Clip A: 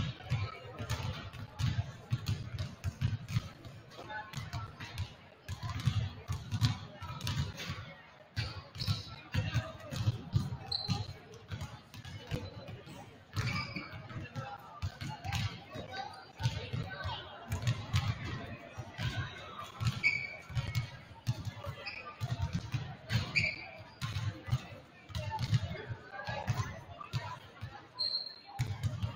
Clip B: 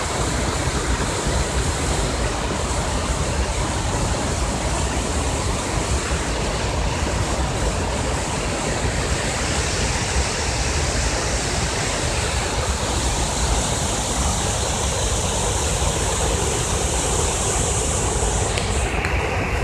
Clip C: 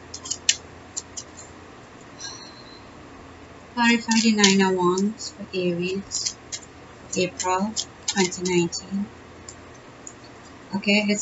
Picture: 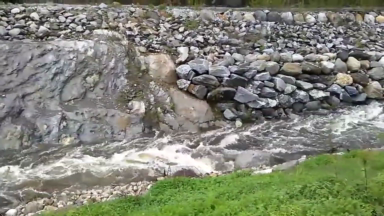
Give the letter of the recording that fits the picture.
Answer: B